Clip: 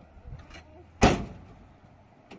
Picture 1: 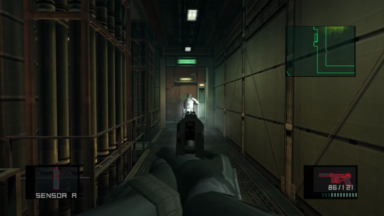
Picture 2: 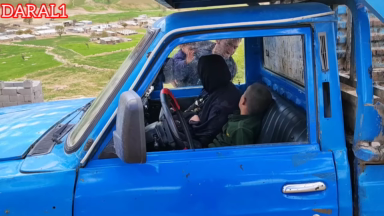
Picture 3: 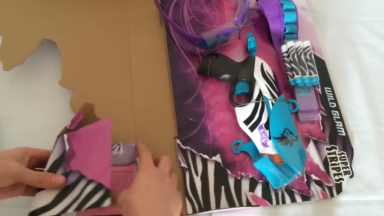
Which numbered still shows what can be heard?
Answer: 2